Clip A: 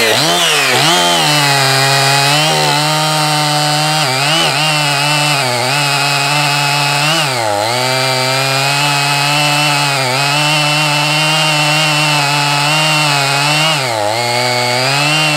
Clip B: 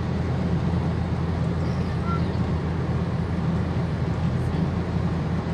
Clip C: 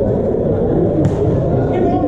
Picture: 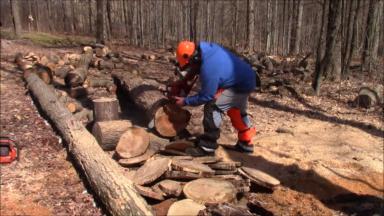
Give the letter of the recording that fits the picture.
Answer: A